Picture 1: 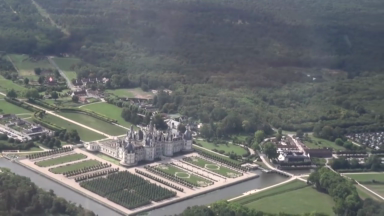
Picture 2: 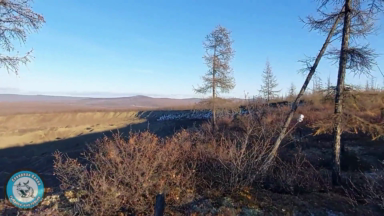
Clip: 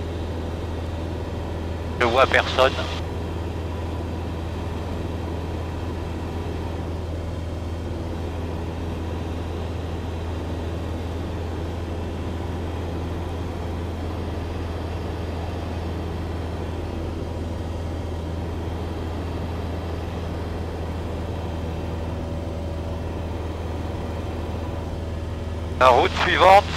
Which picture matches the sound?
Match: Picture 1